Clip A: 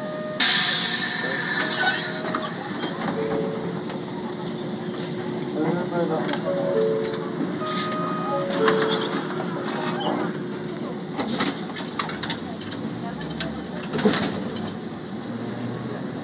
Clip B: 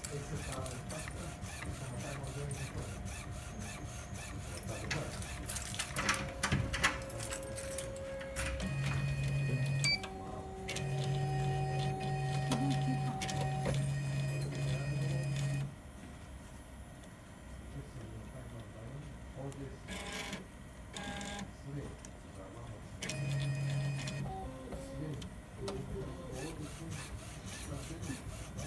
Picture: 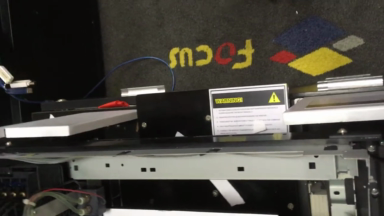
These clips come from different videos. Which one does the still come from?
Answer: B